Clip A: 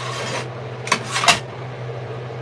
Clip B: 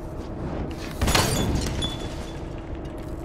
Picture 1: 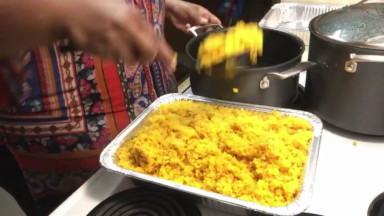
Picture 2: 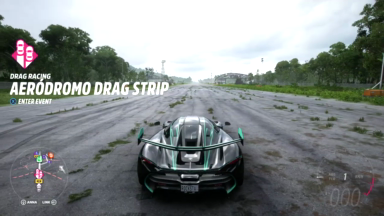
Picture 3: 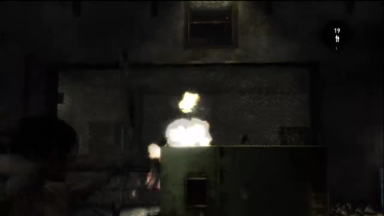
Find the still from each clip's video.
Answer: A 1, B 3